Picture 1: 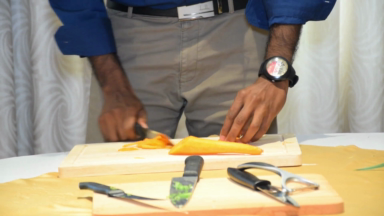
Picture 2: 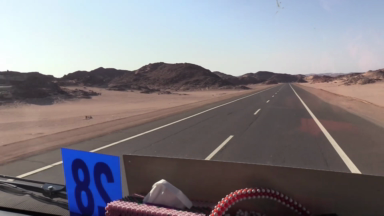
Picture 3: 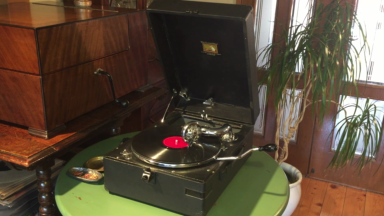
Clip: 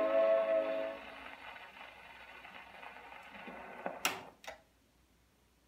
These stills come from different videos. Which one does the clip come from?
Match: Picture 3